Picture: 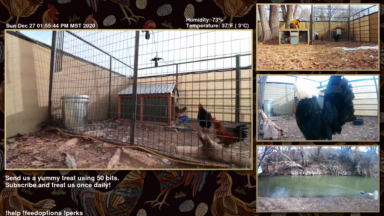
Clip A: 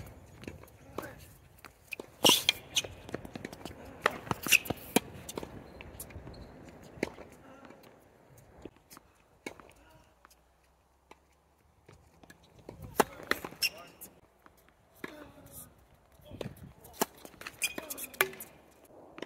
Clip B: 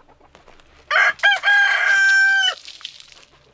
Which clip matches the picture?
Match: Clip B